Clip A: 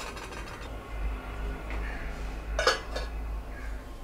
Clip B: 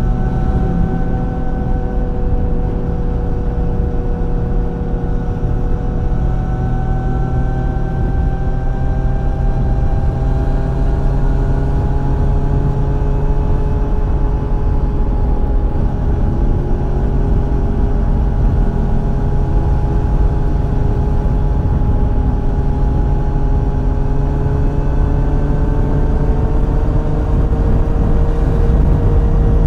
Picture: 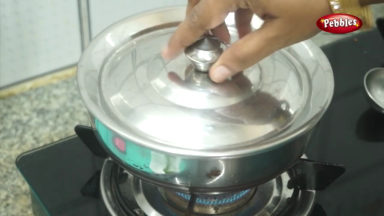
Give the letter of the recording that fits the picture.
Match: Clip A